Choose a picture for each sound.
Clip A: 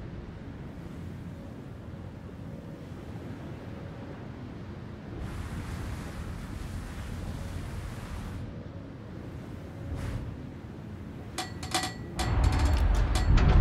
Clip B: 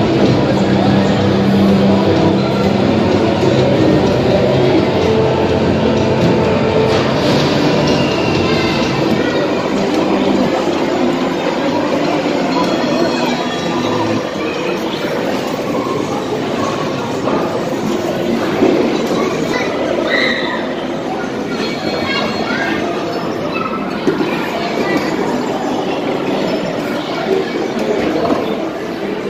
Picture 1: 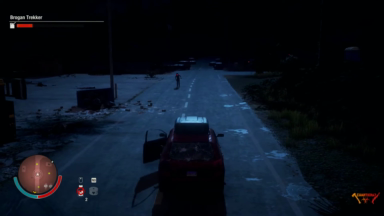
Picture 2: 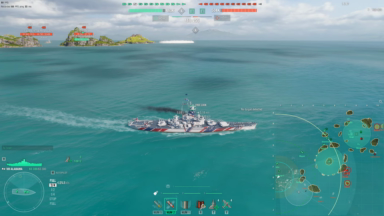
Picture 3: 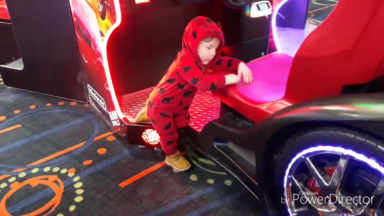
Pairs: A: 2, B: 3